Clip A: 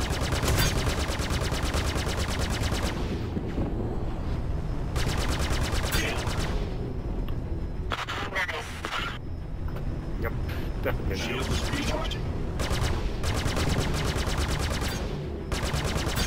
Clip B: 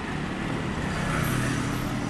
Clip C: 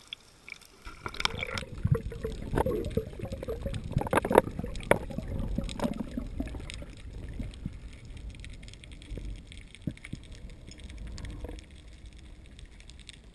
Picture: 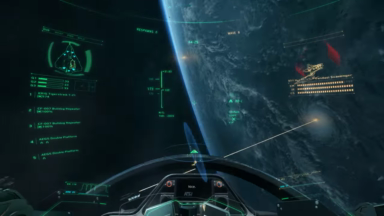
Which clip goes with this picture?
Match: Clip A